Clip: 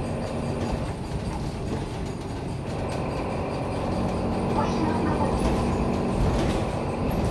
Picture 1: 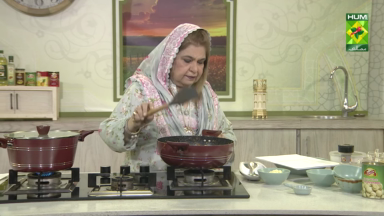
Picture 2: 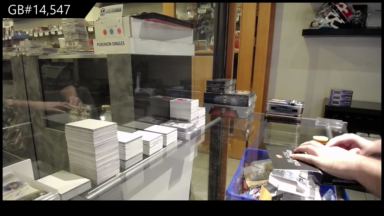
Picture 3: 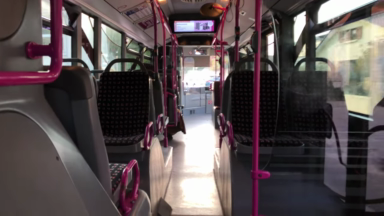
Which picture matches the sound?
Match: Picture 3